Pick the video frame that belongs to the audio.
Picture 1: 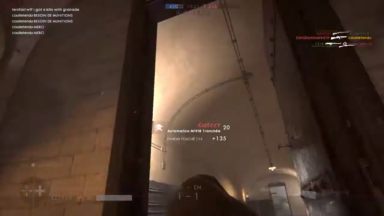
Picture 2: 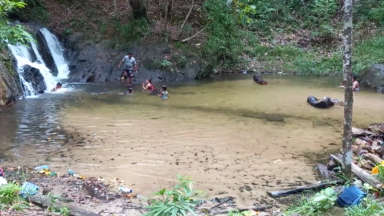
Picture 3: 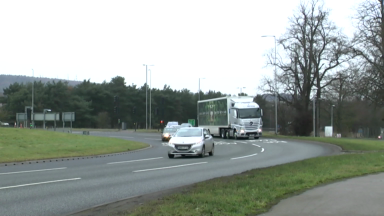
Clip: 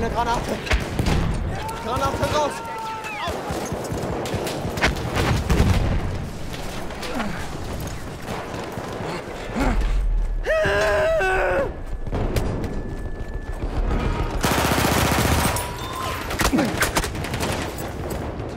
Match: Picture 1